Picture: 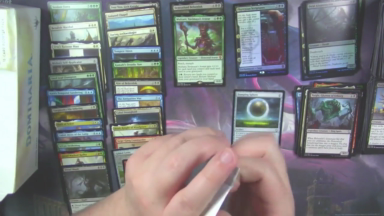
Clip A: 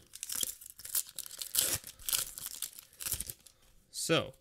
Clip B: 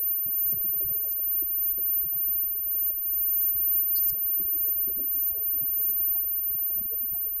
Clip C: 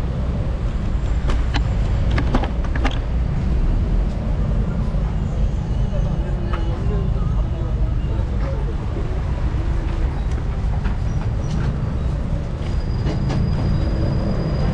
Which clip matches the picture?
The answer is A